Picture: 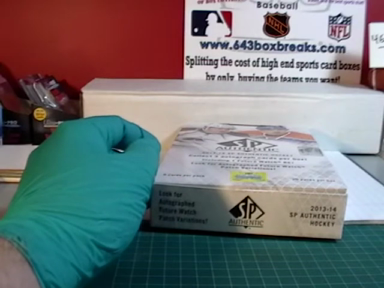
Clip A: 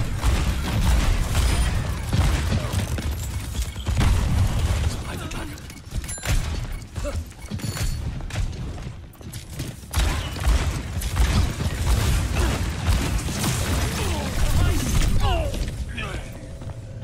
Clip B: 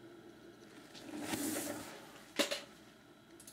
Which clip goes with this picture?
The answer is B